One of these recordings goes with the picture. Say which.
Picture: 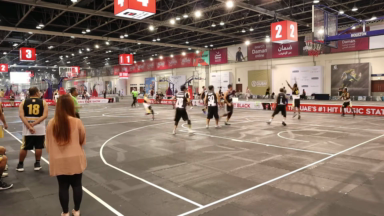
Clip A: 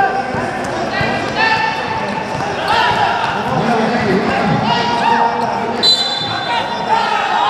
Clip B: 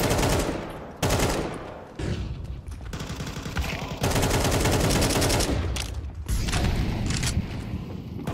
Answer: A